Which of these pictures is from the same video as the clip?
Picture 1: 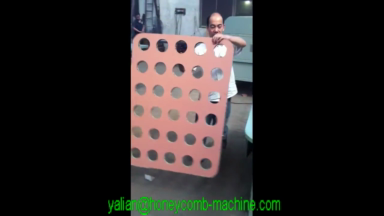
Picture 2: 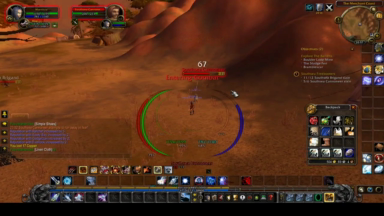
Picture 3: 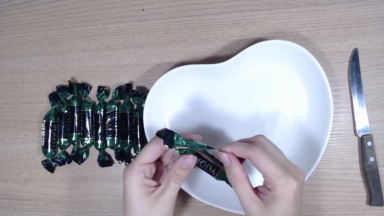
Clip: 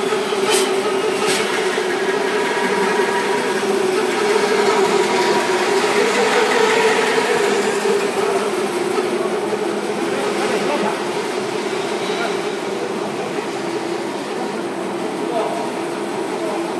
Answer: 1